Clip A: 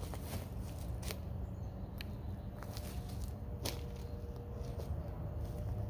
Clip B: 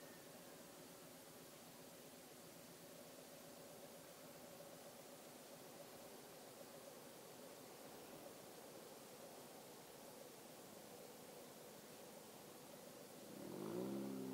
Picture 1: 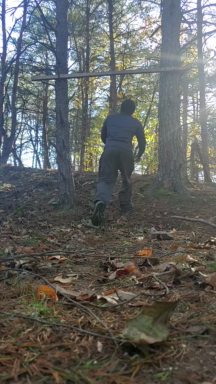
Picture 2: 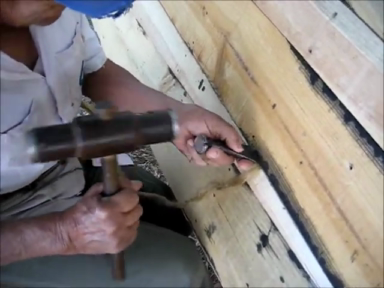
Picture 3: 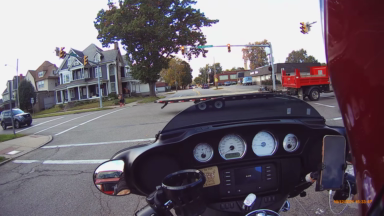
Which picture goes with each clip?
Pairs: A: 1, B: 3